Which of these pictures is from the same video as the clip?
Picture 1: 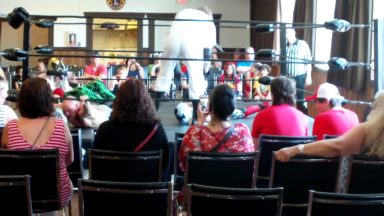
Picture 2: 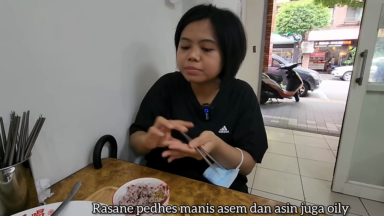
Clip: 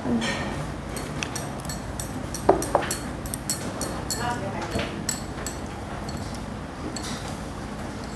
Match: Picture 2